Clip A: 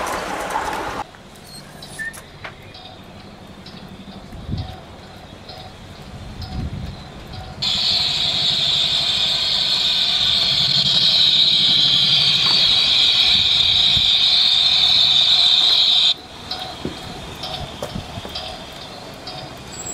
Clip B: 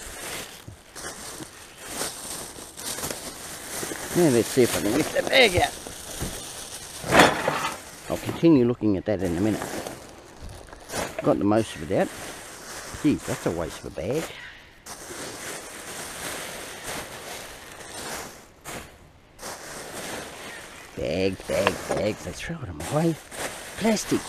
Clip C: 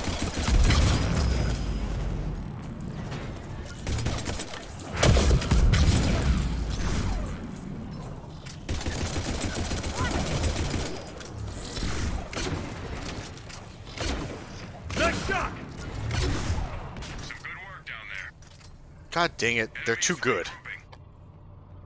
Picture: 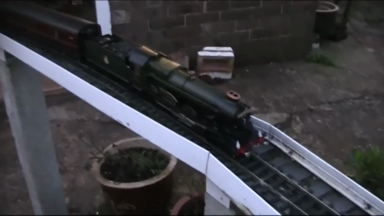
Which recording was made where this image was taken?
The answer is A